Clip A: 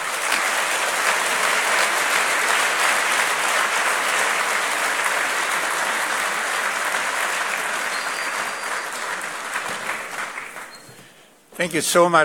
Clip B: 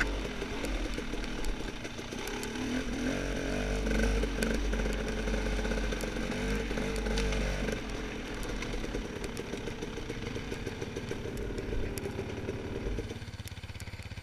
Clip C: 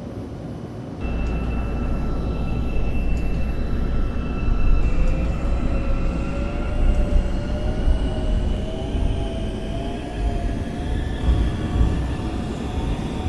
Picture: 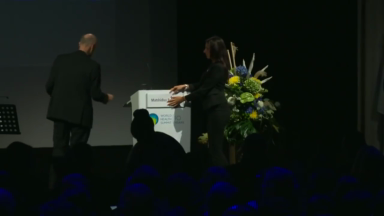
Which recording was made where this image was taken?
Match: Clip A